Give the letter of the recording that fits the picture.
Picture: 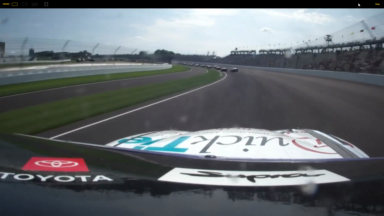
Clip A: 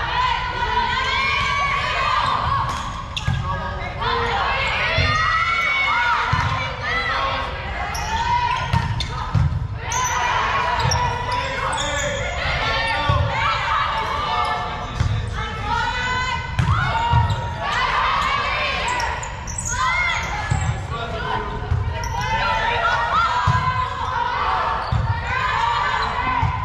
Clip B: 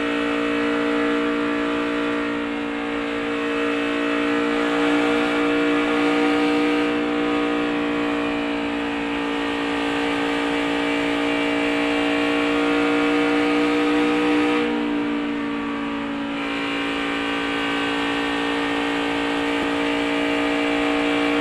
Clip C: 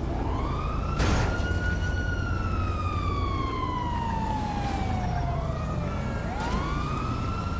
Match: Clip B